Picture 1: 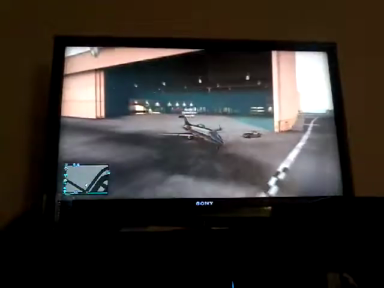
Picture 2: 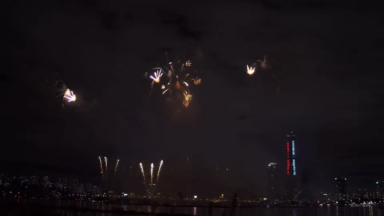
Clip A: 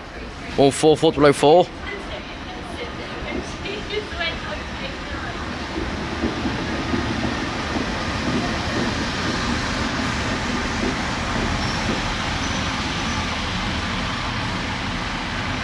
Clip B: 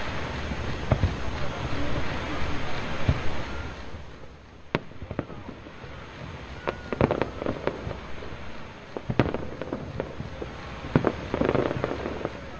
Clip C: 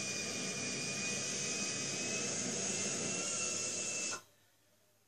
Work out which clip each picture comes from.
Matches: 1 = C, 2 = B